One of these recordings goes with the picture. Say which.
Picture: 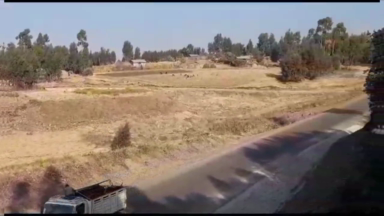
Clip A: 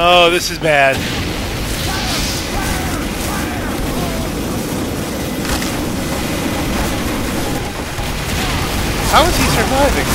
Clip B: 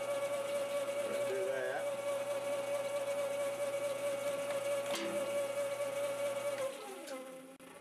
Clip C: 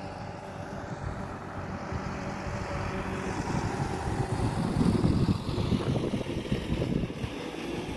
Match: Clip C